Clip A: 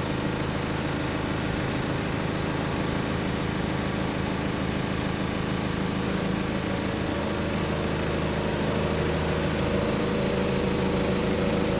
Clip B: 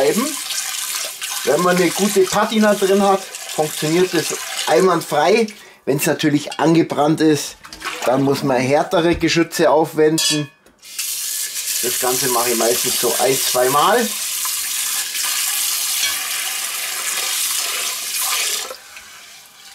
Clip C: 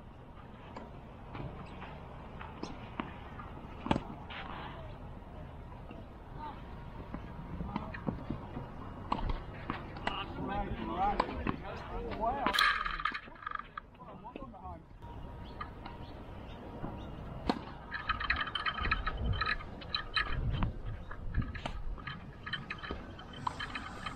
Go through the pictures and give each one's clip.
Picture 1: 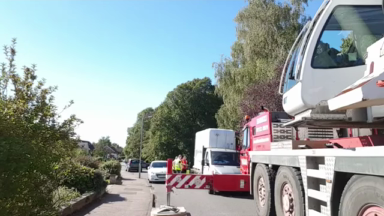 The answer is A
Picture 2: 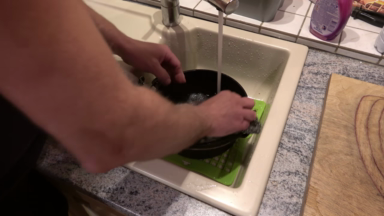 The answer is B